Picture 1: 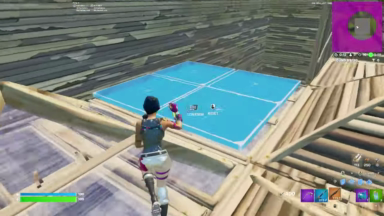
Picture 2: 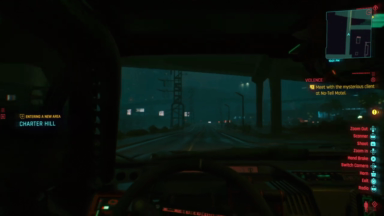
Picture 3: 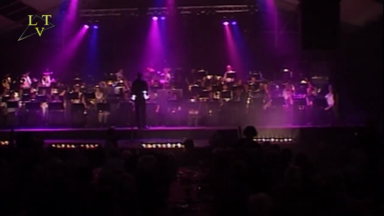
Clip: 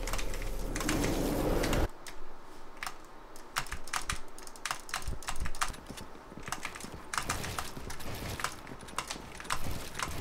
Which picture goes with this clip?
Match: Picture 1